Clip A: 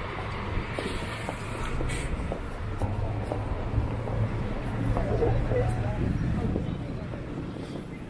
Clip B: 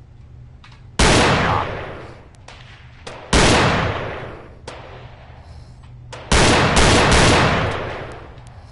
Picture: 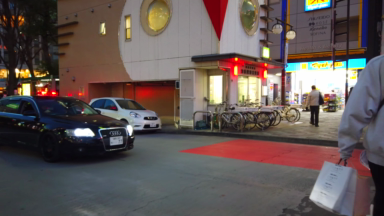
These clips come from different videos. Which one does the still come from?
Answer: A